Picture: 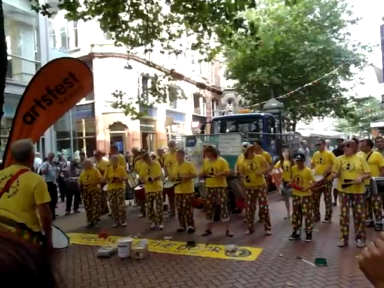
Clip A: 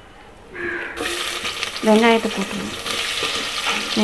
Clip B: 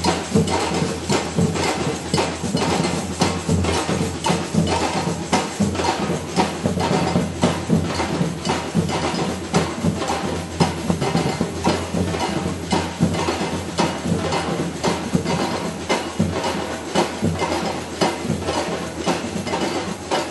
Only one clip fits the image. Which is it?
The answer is B